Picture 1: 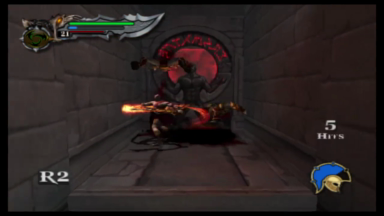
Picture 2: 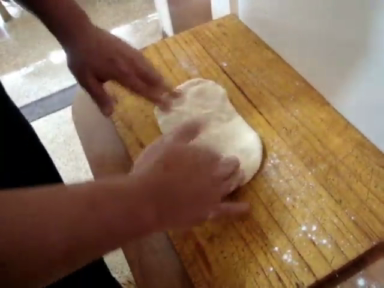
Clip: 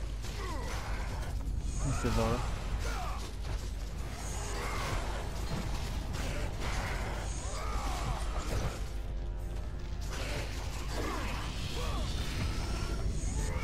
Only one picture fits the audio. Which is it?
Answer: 1